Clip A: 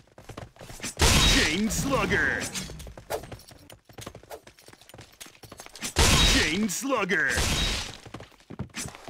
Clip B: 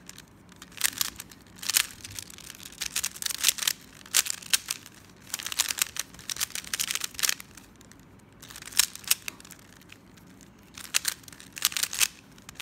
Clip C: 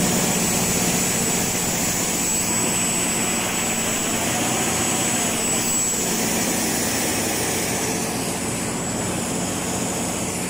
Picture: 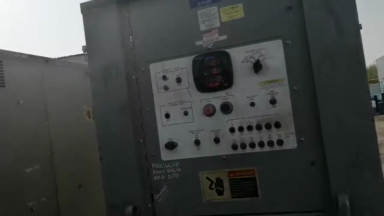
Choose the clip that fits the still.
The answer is C